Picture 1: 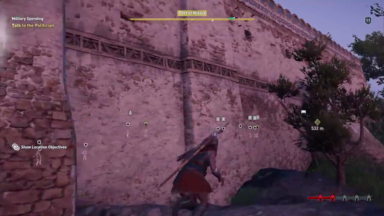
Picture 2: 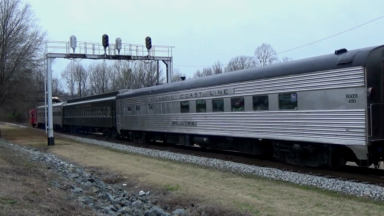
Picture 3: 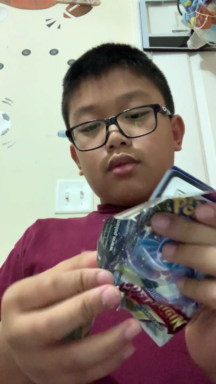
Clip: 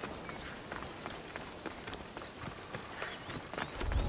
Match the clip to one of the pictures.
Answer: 1